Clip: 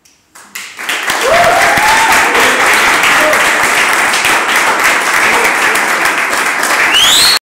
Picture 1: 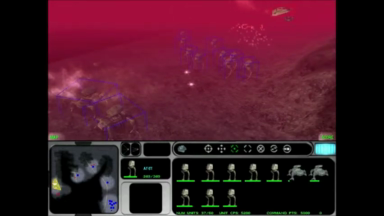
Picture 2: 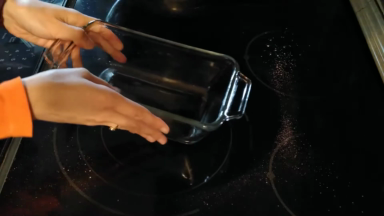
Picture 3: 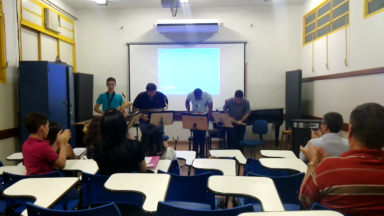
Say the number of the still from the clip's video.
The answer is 3